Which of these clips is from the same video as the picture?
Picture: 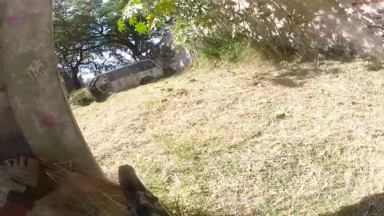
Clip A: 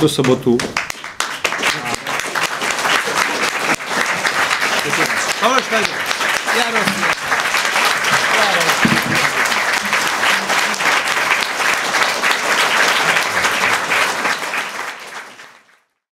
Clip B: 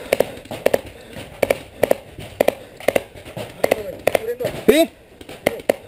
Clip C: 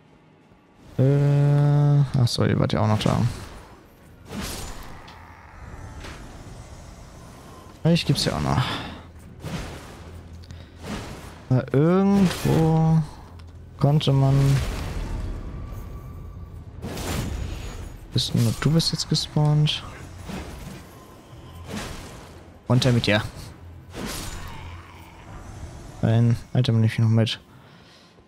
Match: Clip B